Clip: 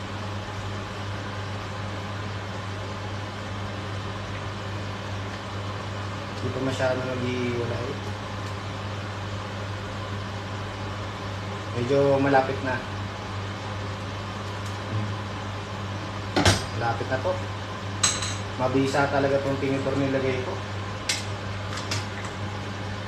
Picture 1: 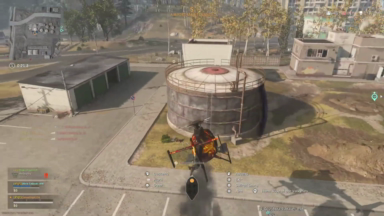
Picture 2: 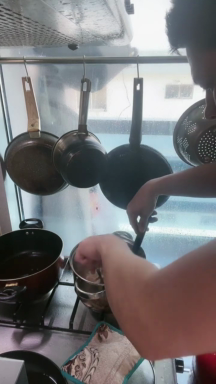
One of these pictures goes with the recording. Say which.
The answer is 2